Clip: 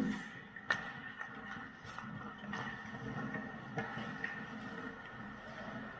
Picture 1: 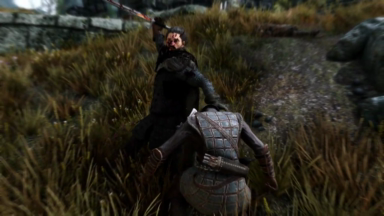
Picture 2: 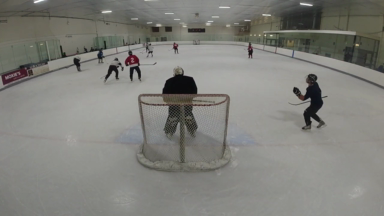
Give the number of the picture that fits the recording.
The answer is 2